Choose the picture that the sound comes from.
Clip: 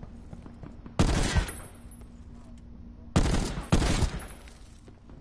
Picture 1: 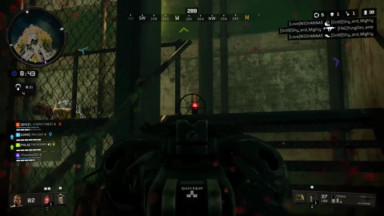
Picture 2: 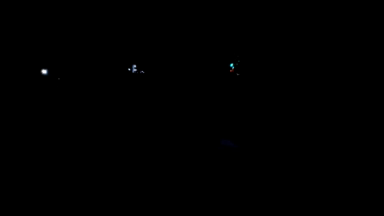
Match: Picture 1